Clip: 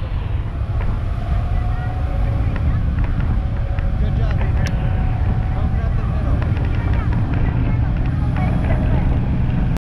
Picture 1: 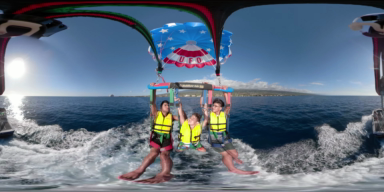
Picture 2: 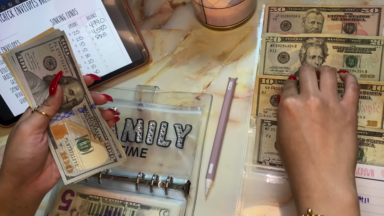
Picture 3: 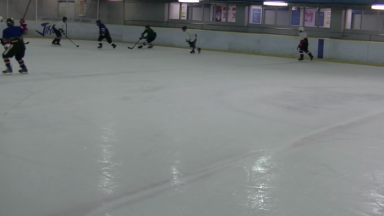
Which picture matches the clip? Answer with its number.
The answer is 1